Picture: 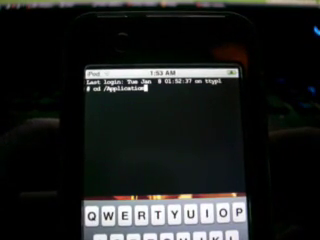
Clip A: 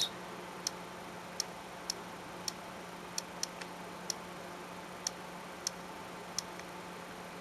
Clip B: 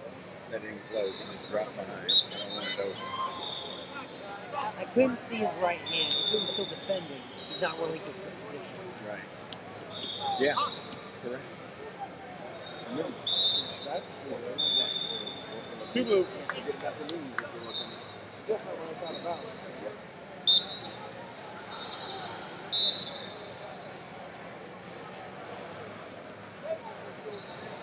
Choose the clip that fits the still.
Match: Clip A